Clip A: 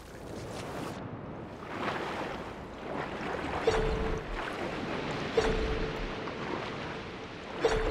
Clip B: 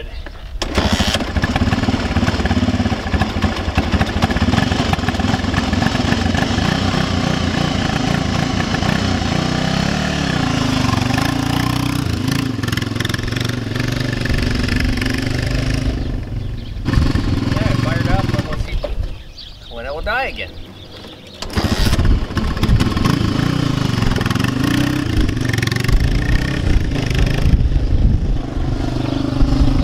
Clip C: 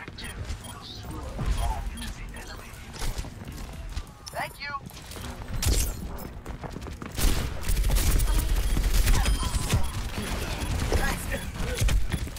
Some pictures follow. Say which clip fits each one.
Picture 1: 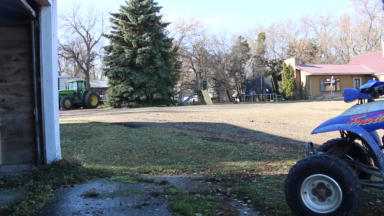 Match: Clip B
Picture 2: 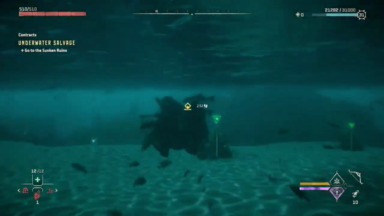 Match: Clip A